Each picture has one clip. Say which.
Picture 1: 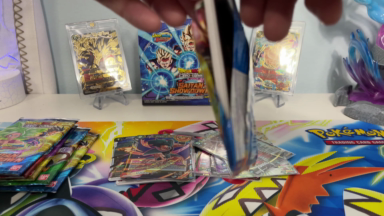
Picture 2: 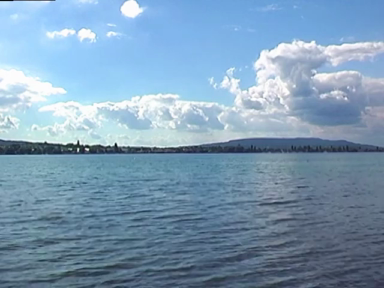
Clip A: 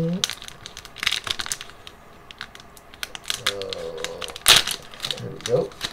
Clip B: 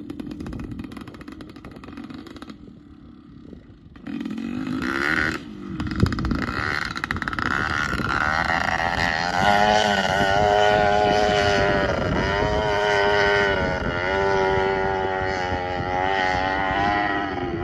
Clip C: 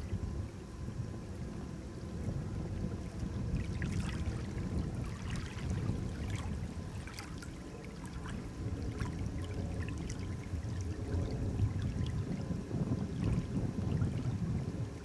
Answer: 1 A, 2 C